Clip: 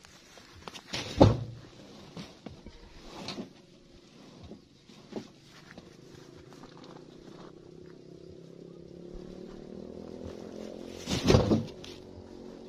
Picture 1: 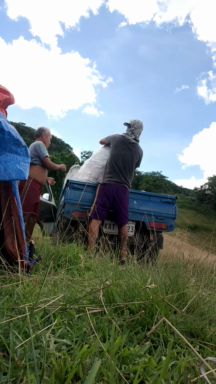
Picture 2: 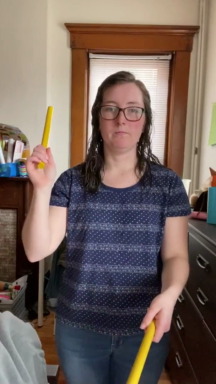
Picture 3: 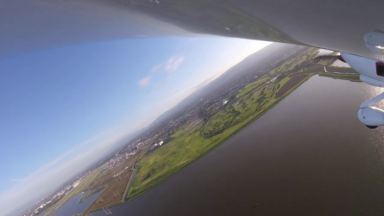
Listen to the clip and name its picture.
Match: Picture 1